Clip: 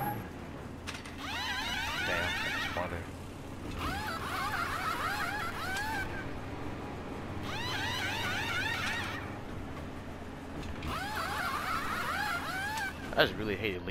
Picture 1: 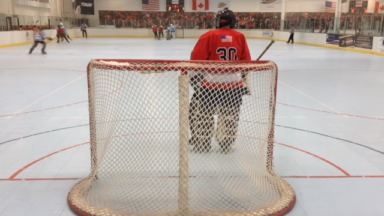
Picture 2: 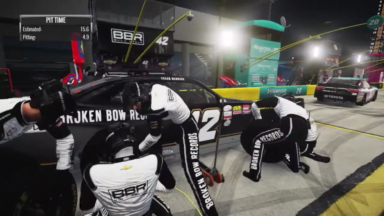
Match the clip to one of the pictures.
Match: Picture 2